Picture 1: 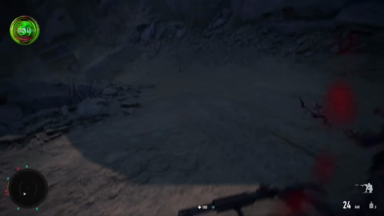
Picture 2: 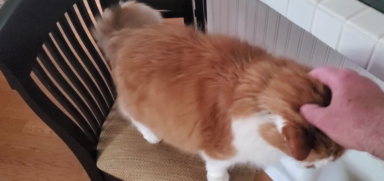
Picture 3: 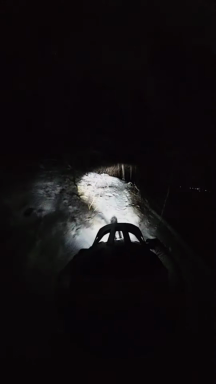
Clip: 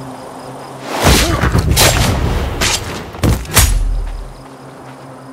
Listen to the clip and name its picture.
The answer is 1